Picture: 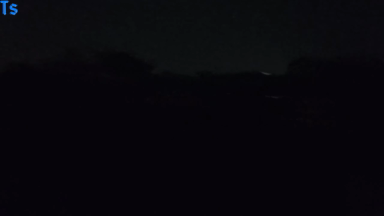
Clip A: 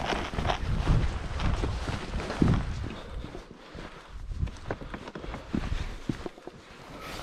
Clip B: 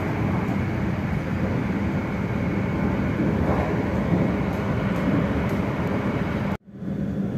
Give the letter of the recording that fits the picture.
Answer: B